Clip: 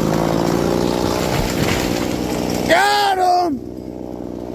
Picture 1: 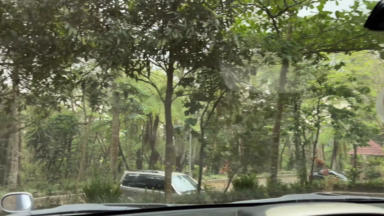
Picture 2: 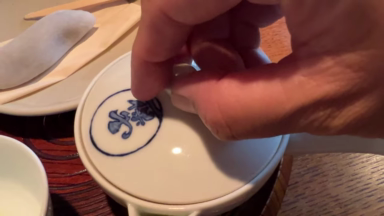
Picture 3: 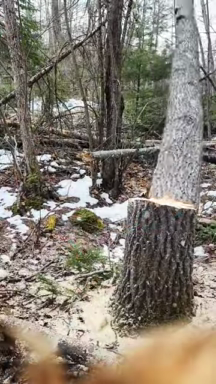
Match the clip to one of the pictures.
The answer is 3